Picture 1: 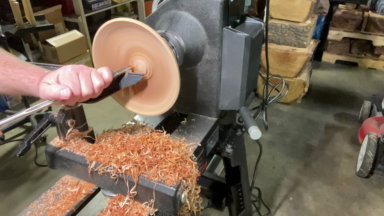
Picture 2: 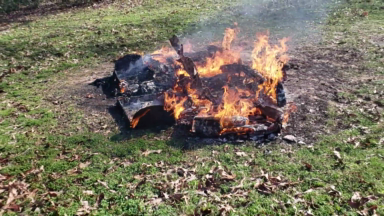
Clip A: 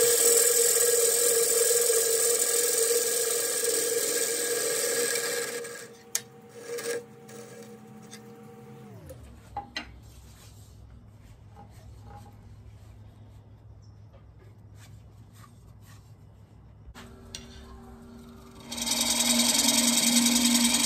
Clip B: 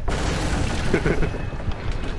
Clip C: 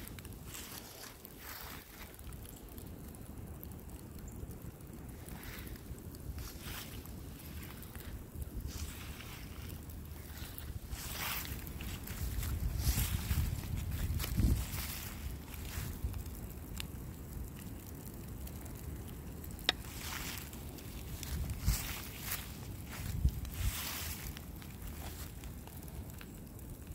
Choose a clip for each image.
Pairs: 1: A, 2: C